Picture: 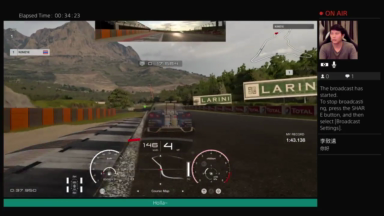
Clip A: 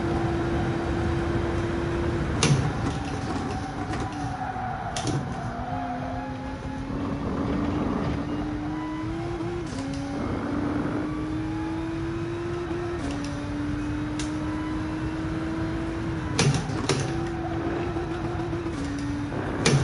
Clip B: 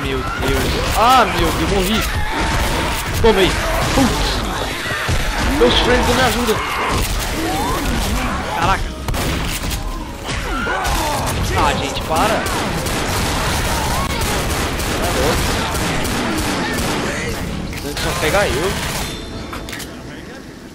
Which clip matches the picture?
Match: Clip A